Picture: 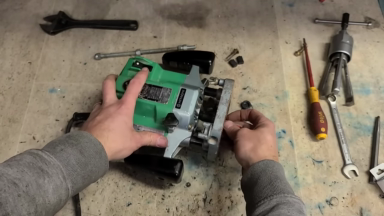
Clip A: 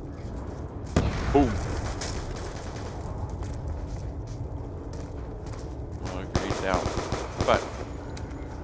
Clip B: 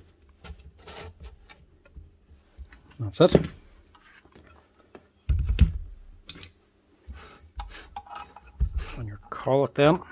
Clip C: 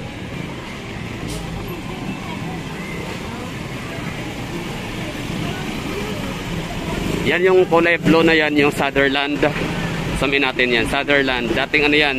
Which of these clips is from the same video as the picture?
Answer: B